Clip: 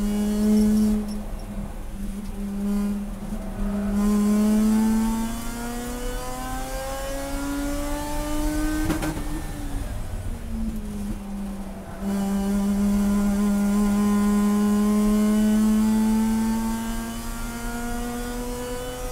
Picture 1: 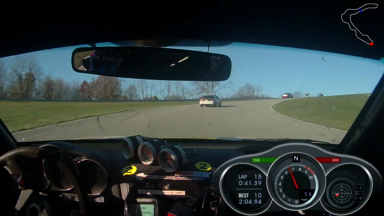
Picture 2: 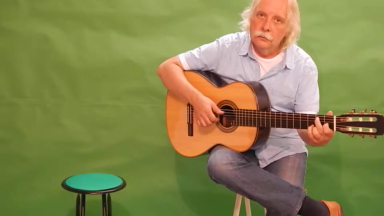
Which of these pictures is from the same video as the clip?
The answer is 1